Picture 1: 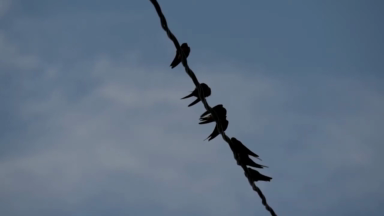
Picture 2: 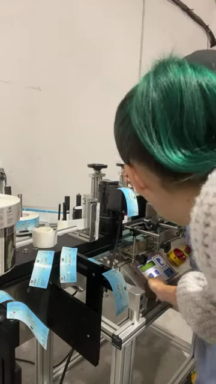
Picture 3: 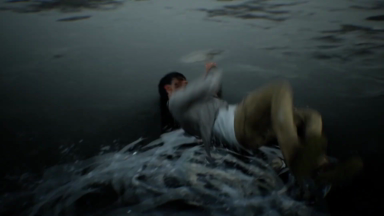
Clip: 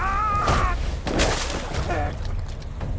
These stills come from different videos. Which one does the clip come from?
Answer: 3